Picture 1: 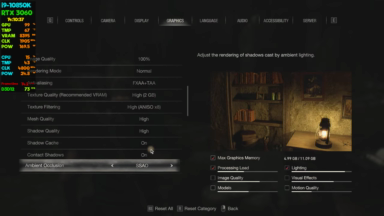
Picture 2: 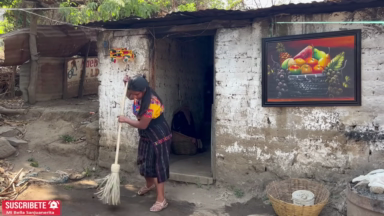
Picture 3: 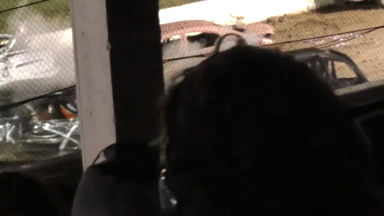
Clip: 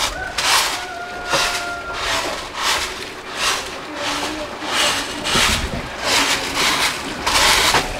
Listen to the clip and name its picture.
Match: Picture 2